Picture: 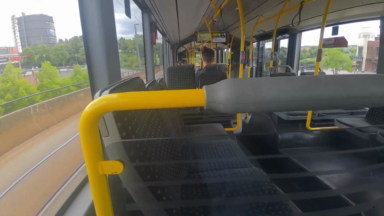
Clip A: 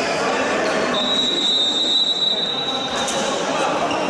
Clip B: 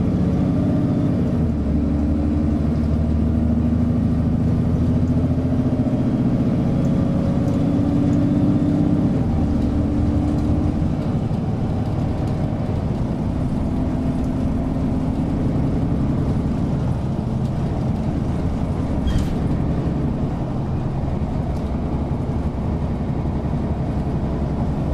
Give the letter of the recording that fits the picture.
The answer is B